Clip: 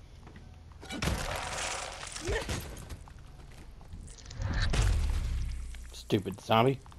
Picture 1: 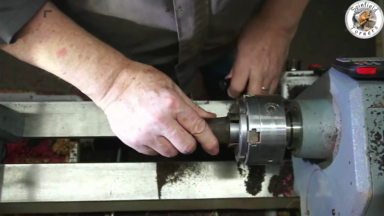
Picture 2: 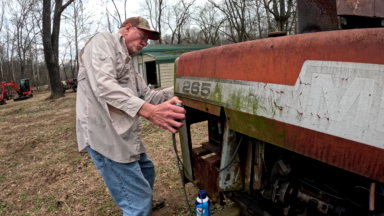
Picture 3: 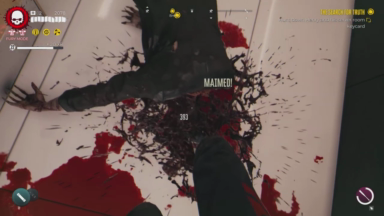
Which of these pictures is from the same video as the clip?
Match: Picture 3